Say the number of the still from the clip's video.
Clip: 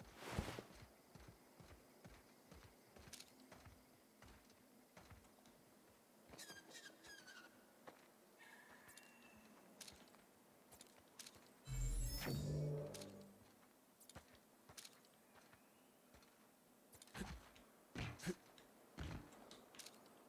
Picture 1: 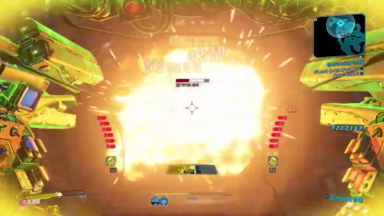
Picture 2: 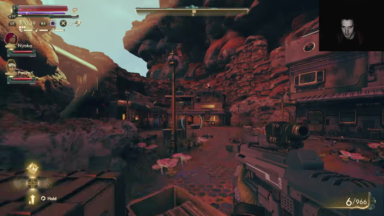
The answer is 2